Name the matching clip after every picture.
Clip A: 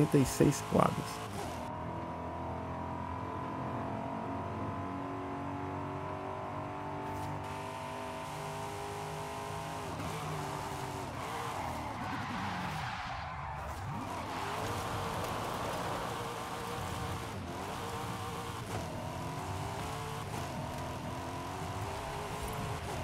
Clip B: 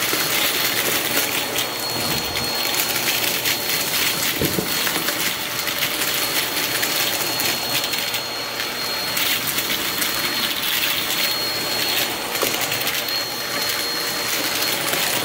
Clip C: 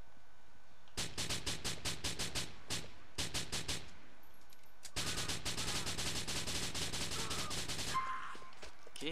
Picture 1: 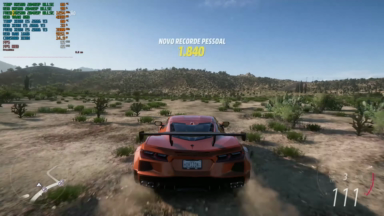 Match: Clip A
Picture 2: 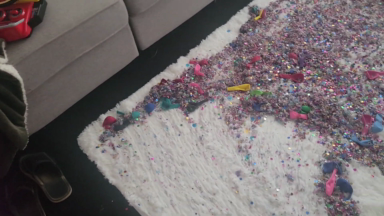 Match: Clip B